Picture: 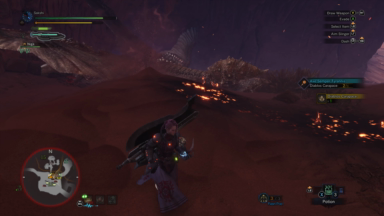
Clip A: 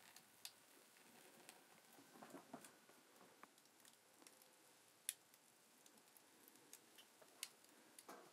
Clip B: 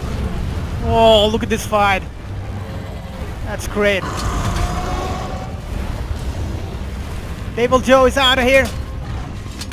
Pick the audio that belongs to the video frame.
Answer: B